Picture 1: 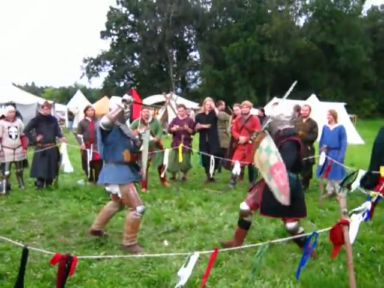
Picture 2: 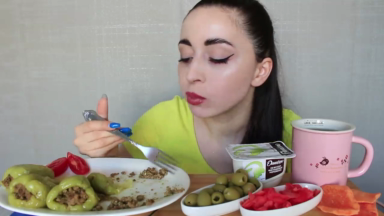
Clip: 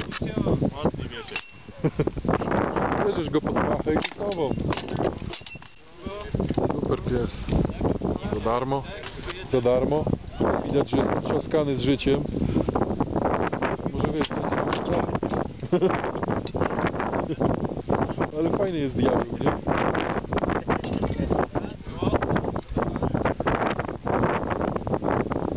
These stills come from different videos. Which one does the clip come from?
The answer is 1